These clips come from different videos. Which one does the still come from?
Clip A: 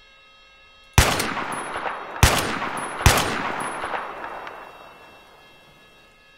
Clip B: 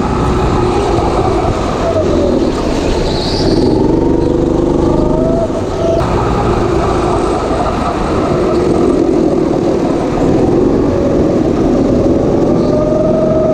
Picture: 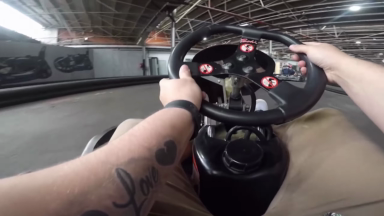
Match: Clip B